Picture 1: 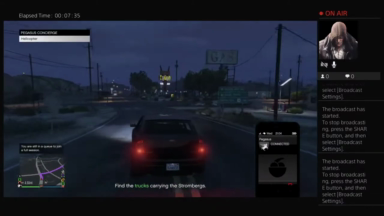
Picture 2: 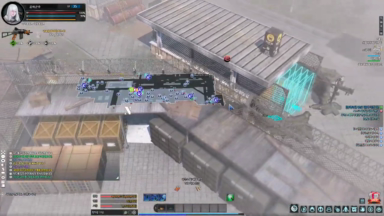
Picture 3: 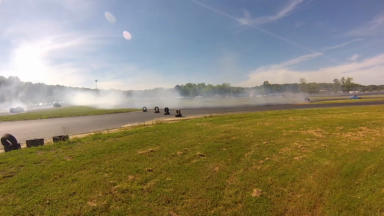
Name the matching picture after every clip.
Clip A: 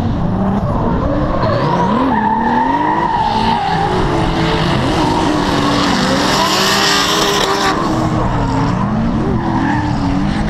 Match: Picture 3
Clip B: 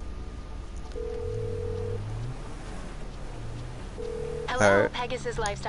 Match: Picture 1